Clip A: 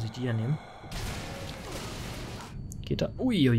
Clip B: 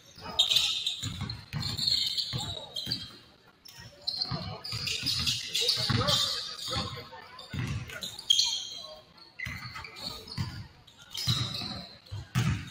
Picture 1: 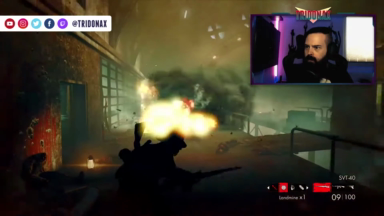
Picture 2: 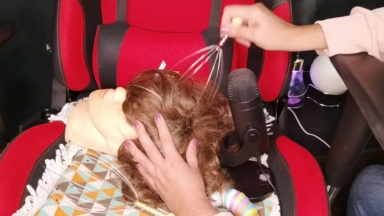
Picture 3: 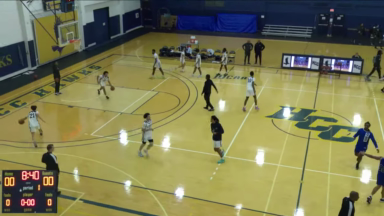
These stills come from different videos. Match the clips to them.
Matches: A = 1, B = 3